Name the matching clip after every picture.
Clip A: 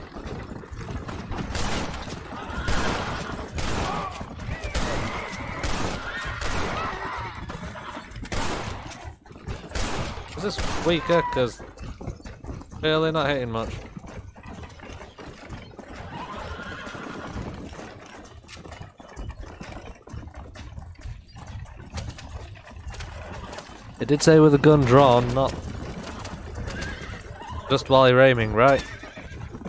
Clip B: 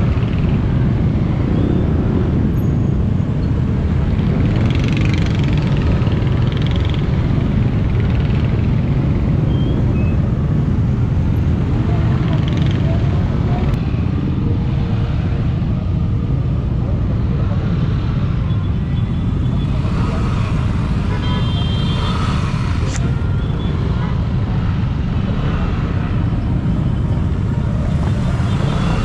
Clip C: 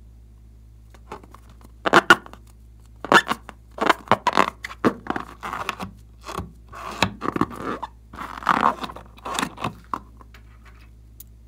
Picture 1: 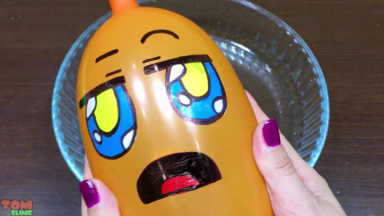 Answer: C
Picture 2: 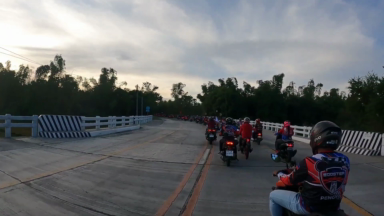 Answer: B